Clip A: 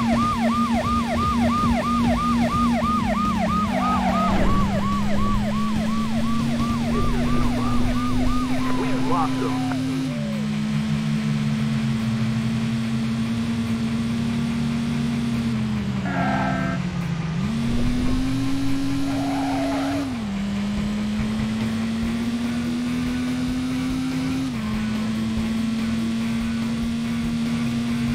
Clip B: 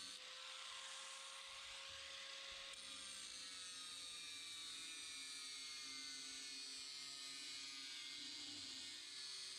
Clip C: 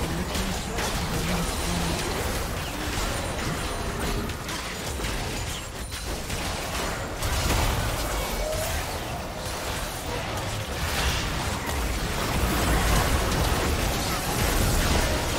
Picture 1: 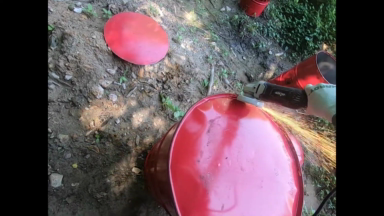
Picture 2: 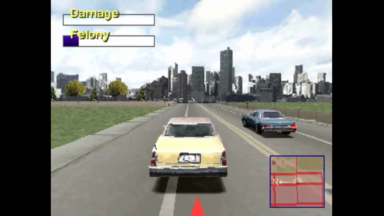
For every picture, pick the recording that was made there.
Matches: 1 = B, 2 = A